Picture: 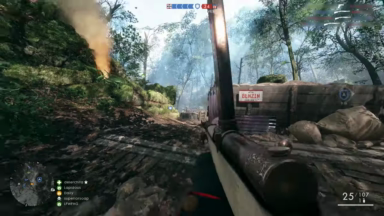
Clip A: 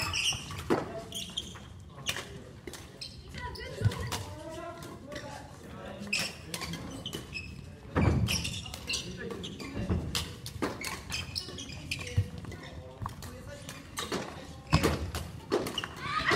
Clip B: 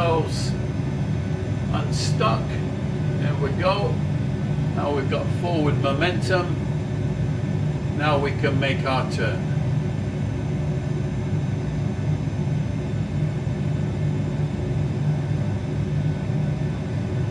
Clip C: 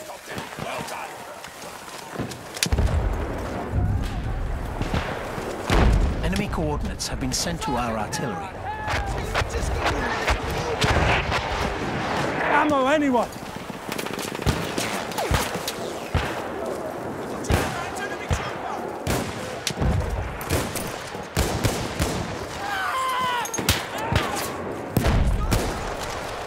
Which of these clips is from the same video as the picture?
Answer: C